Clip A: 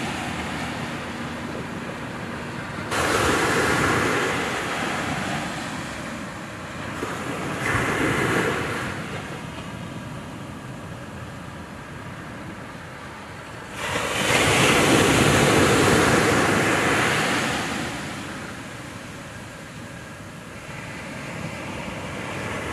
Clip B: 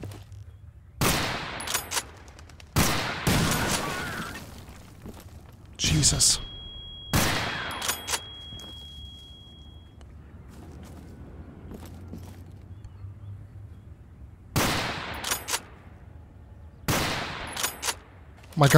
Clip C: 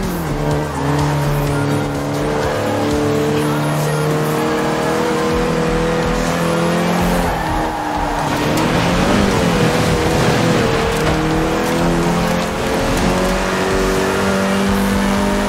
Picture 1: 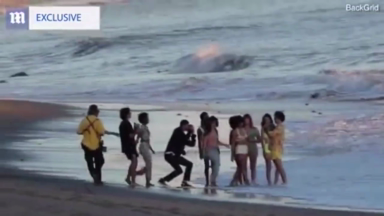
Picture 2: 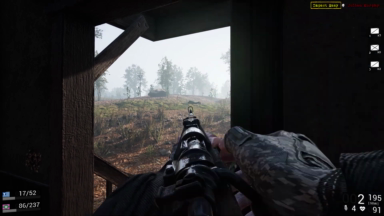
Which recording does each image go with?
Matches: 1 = A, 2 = B